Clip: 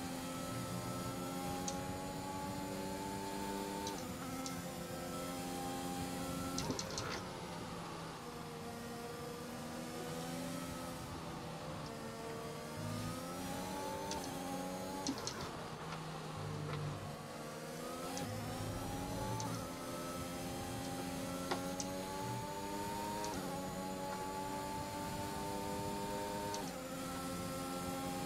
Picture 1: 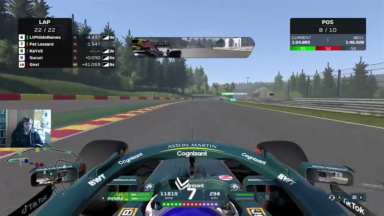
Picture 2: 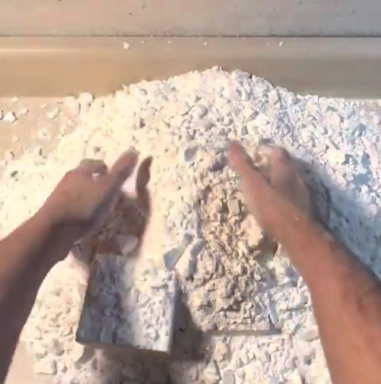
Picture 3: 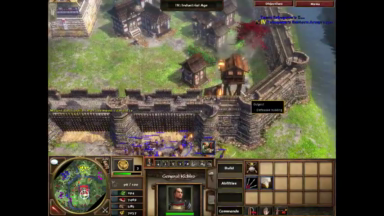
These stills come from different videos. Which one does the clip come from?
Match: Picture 1